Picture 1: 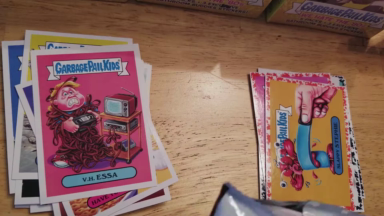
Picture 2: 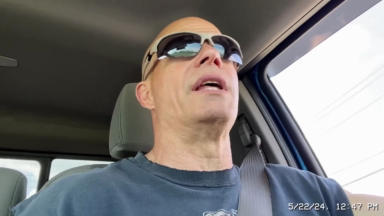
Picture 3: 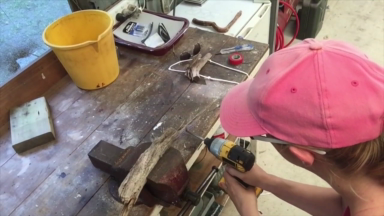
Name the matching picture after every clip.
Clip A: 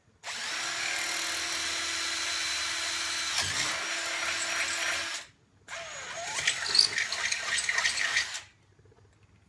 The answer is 3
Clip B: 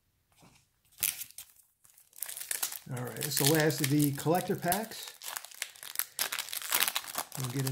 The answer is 1